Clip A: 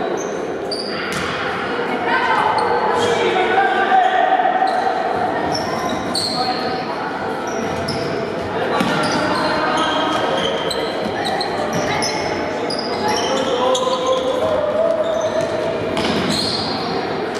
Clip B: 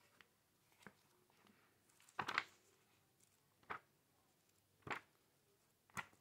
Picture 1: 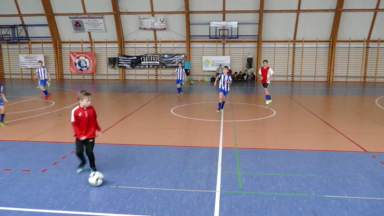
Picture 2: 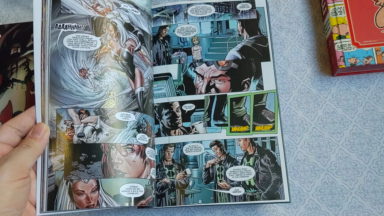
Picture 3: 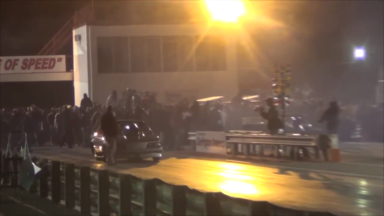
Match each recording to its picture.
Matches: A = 1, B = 2